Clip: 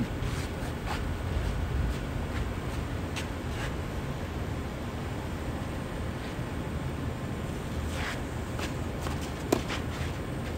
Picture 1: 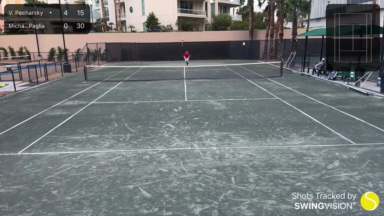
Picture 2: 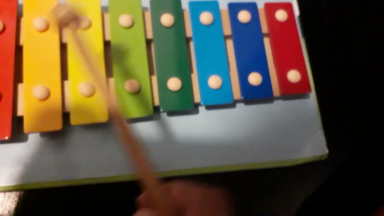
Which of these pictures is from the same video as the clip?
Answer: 1